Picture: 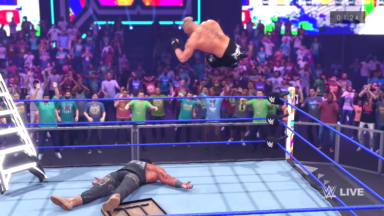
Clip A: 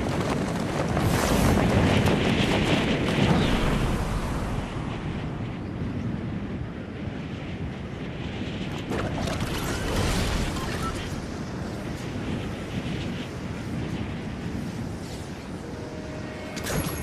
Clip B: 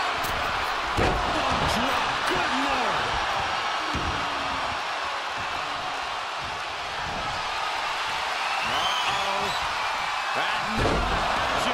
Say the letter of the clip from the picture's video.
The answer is B